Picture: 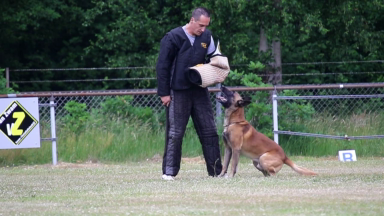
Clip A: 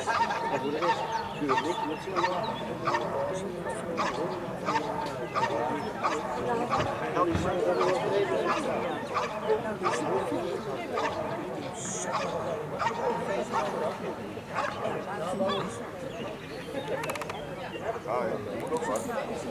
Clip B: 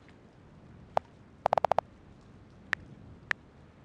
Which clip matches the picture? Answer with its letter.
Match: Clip A